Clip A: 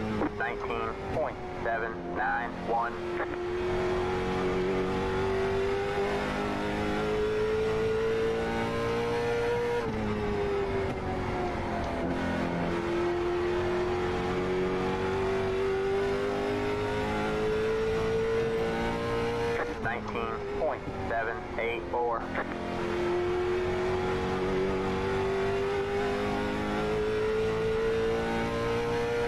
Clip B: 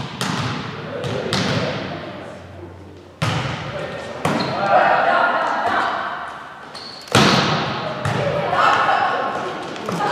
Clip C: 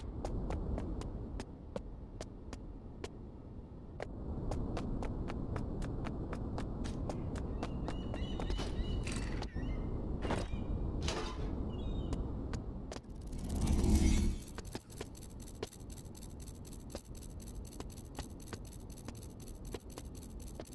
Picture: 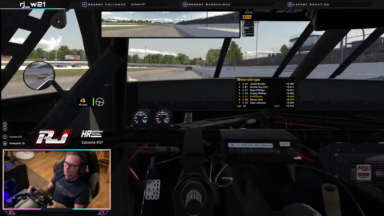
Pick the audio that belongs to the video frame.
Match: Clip A